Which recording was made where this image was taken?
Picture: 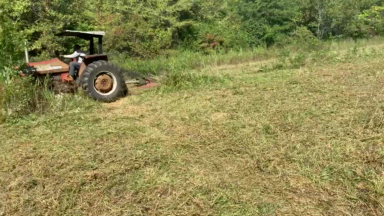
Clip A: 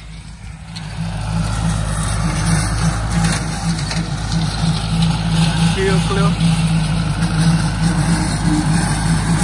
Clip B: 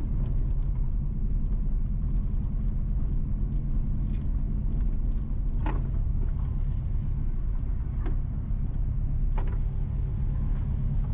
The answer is A